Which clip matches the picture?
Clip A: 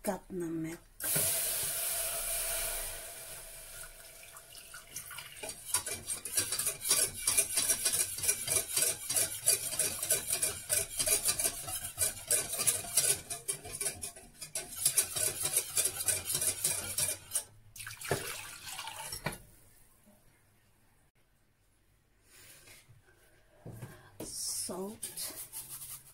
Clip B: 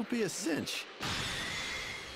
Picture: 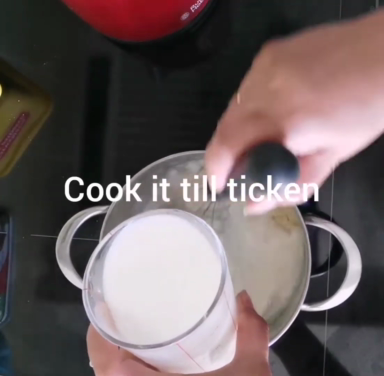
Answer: A